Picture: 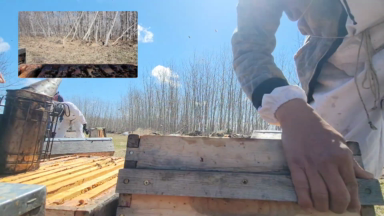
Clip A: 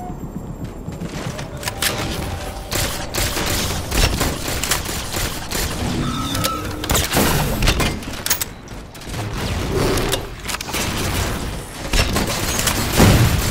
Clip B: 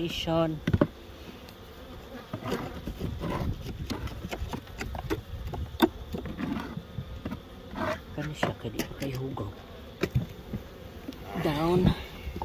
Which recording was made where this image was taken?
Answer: B